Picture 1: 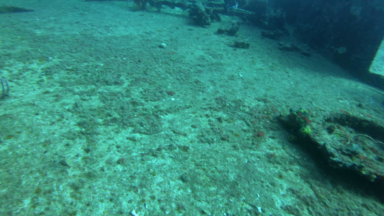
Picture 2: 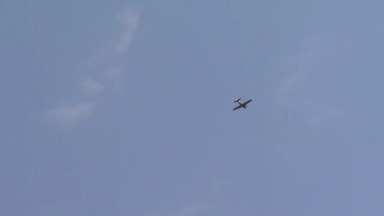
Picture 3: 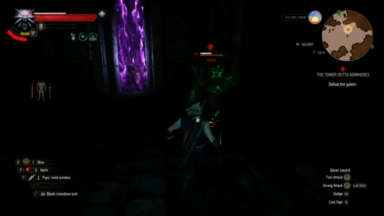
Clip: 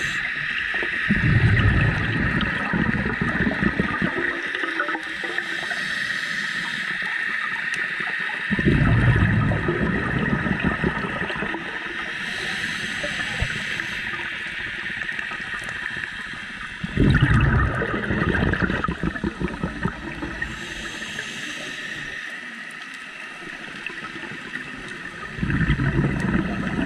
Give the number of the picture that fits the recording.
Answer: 1